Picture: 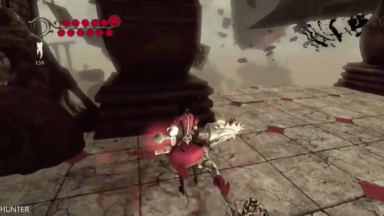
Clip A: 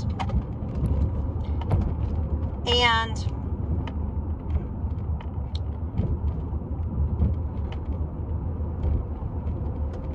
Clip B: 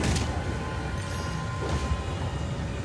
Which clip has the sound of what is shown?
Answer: B